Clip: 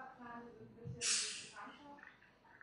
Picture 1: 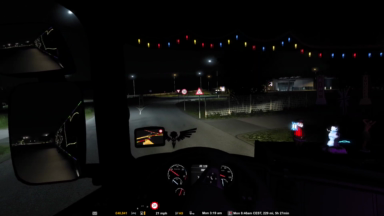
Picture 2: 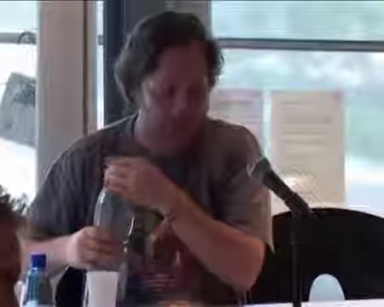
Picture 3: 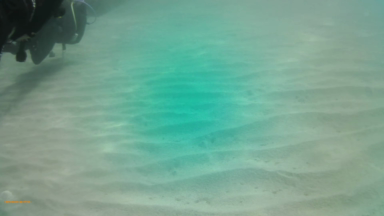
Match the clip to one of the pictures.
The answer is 2